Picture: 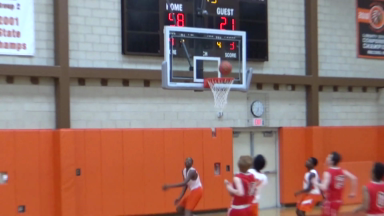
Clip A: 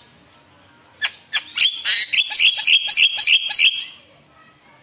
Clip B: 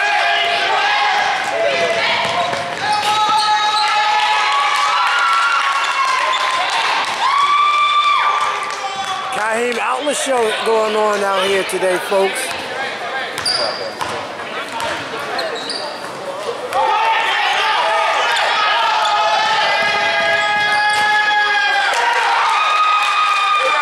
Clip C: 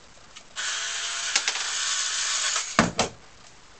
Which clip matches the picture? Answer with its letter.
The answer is B